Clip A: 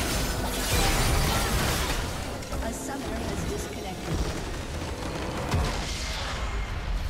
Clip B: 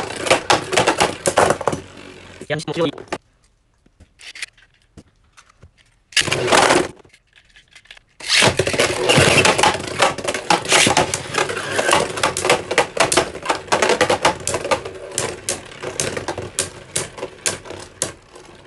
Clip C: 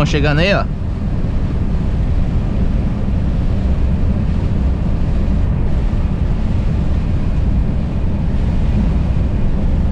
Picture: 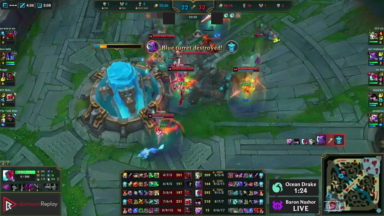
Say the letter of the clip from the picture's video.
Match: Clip A